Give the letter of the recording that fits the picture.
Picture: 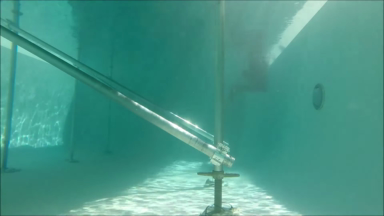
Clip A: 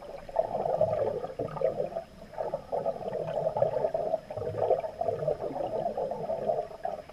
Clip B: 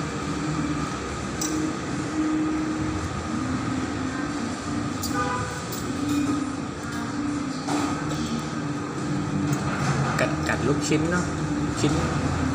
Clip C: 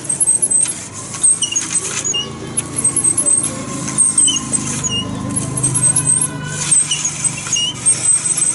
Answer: A